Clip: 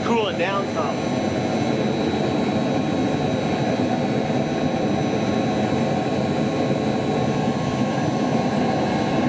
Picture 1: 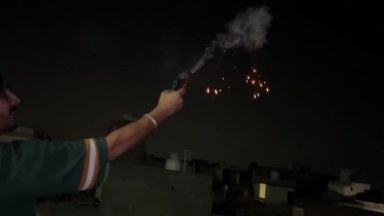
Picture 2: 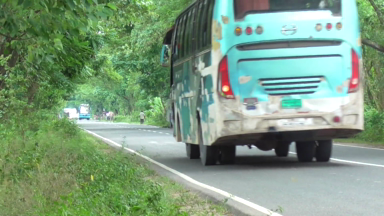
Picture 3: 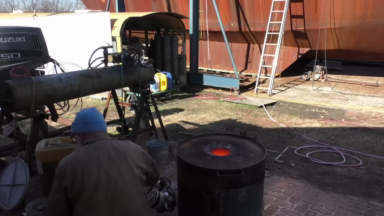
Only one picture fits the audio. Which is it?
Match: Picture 3